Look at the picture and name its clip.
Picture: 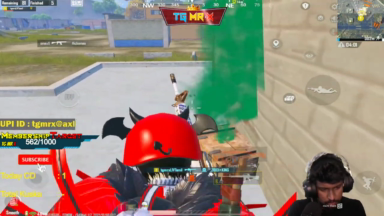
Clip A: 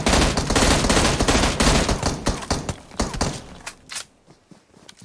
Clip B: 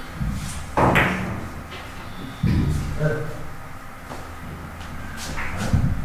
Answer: A